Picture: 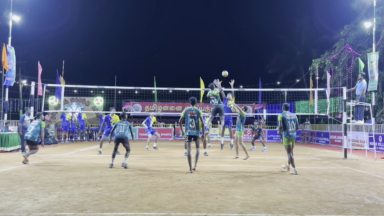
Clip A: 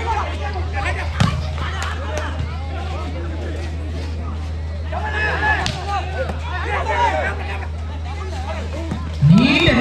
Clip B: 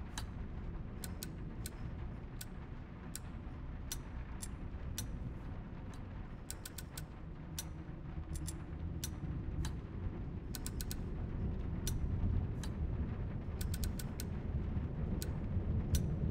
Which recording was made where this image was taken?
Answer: A